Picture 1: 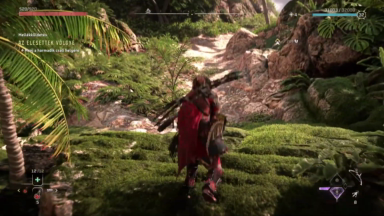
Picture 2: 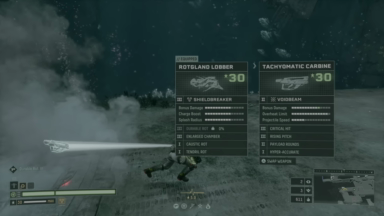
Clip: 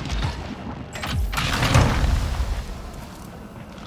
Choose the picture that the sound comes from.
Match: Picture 2